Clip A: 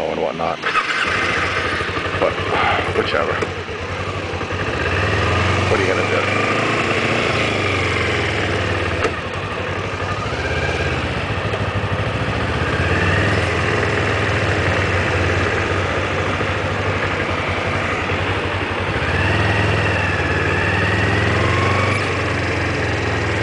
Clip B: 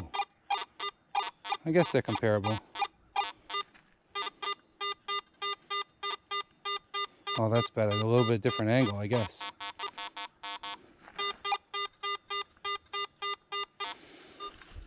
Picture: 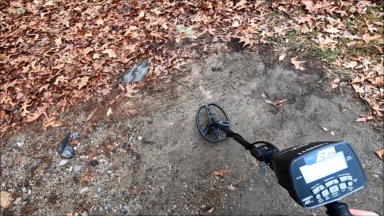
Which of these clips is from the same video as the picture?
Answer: B